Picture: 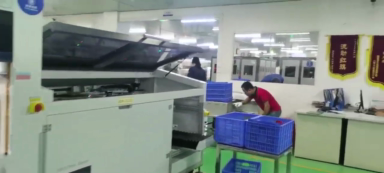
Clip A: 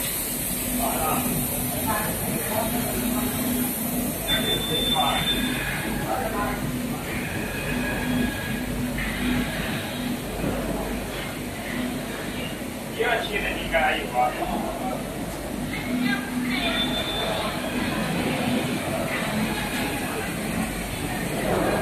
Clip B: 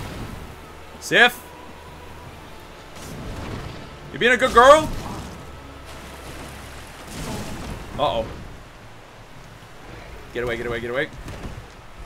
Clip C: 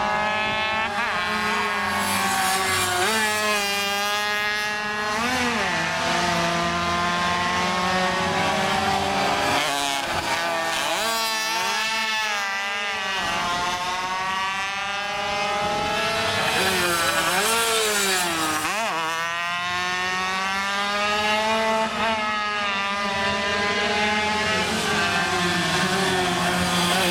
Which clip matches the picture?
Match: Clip A